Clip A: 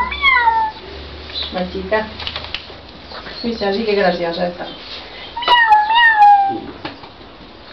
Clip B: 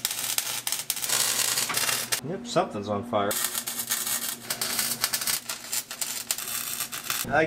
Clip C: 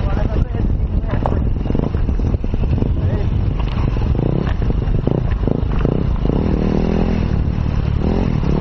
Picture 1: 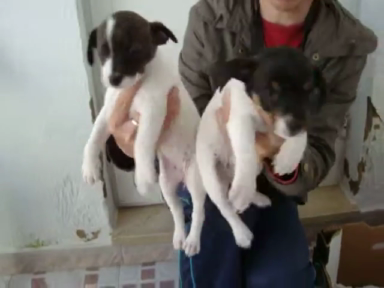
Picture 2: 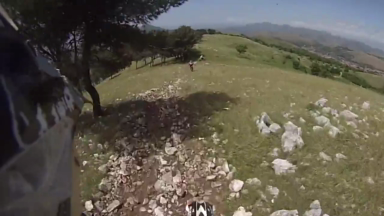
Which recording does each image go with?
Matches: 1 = A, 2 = C